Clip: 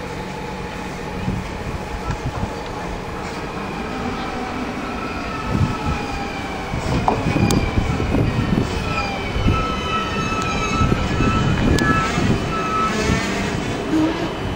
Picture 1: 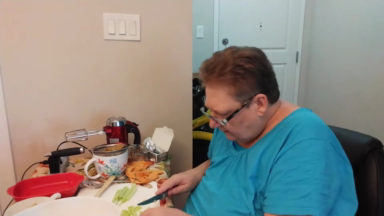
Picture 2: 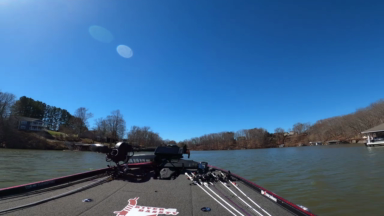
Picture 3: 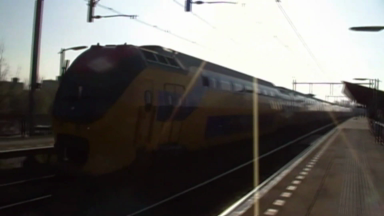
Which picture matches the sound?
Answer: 3